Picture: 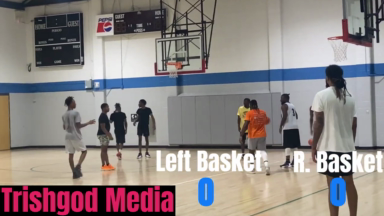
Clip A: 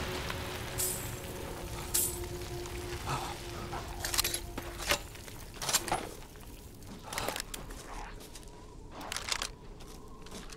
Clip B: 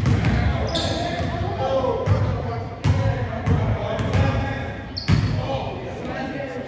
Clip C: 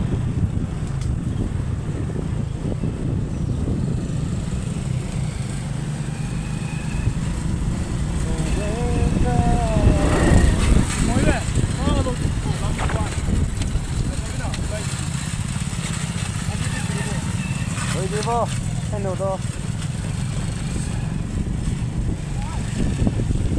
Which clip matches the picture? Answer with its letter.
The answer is B